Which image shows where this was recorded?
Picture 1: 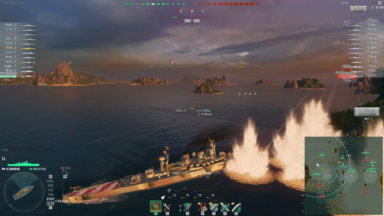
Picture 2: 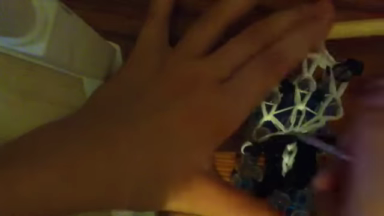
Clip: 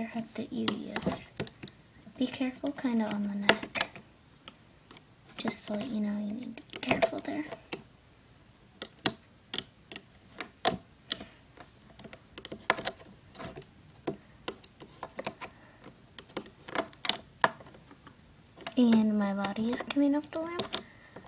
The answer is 2